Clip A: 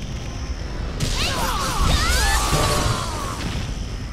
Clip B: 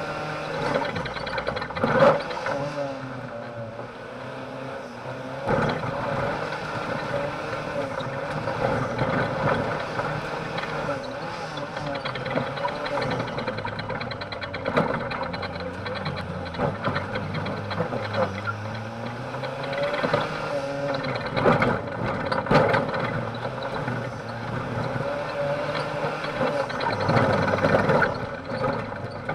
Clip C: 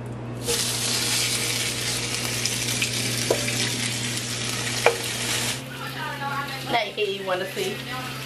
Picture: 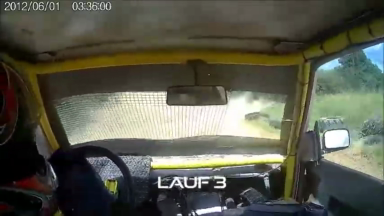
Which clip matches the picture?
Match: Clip B